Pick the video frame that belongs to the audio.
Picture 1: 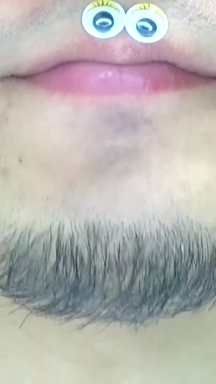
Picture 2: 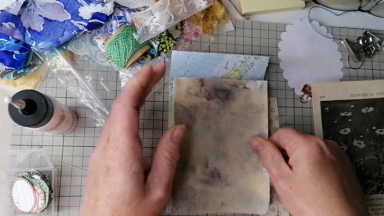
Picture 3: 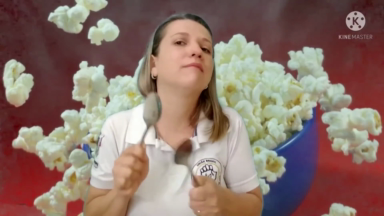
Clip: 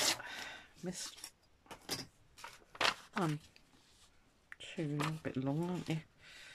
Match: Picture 2